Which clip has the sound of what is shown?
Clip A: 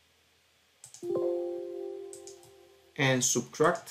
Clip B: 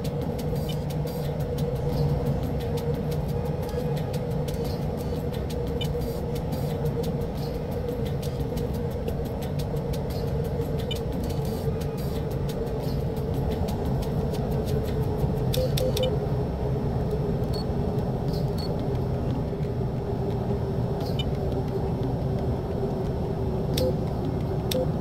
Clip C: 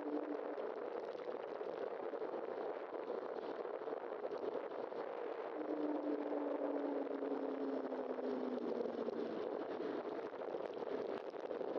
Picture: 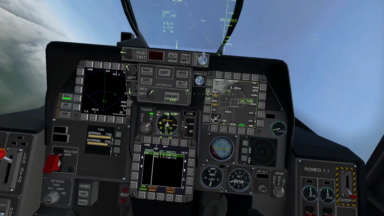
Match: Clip B